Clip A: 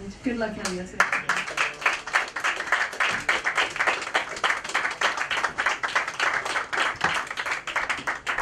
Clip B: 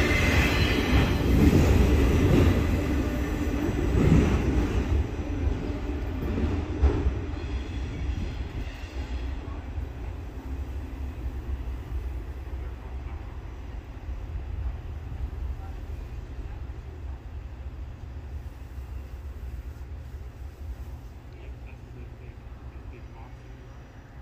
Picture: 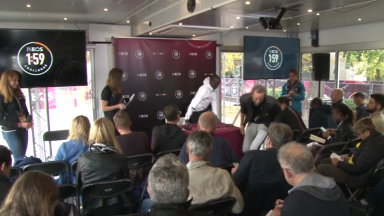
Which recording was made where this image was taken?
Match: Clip A